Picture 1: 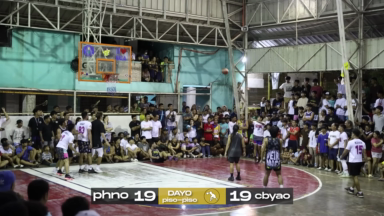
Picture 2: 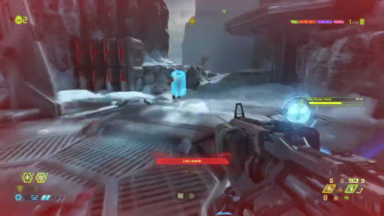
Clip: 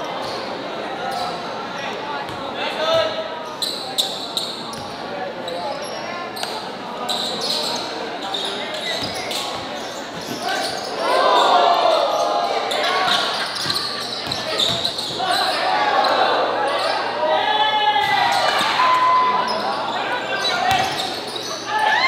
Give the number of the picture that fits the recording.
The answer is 1